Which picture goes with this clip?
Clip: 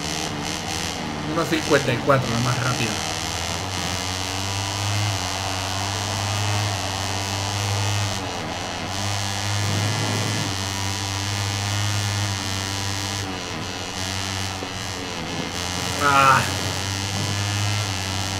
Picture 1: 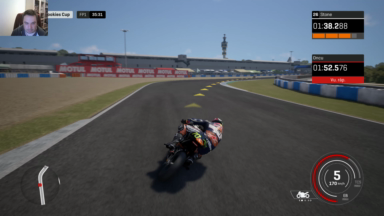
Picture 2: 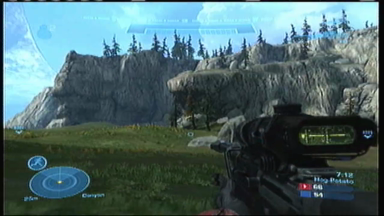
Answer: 1